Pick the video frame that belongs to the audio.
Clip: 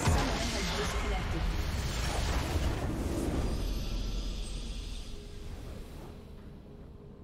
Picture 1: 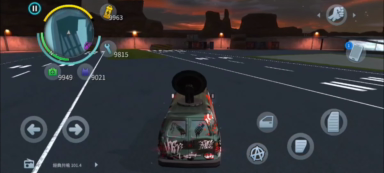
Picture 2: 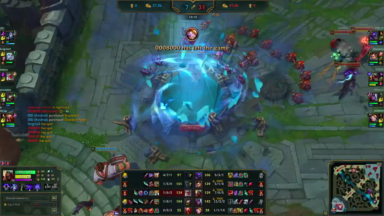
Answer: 2